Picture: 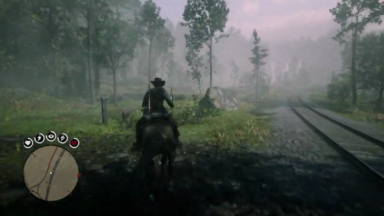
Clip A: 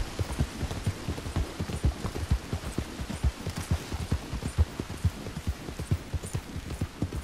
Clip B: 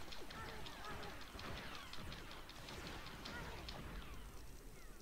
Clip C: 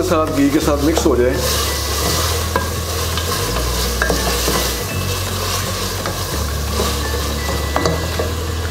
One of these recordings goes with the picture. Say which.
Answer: A